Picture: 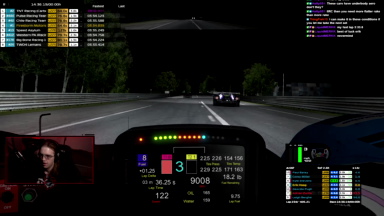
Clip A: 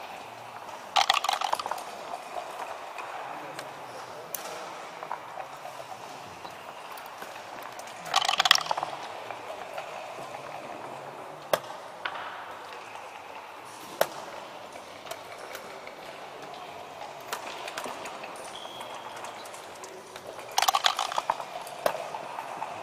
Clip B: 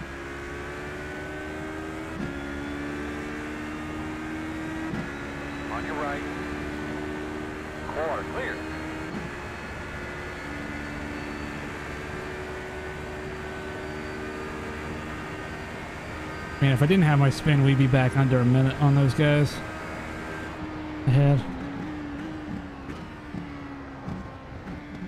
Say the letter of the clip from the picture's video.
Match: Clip B